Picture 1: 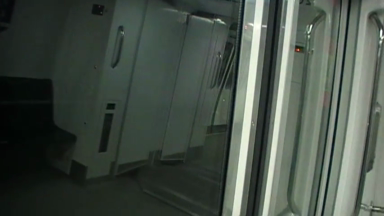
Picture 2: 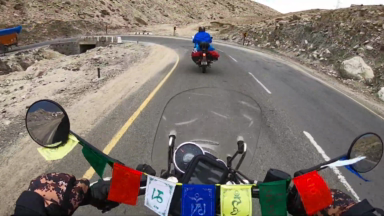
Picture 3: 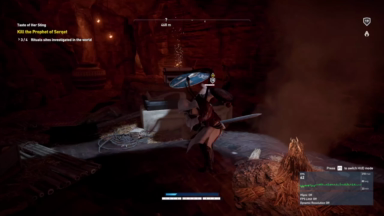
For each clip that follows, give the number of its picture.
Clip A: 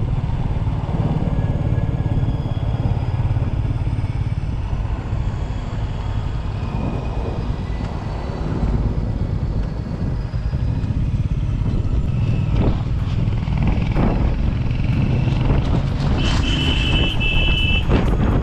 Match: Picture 2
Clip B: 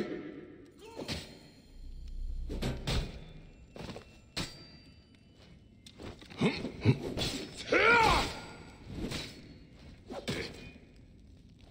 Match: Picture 3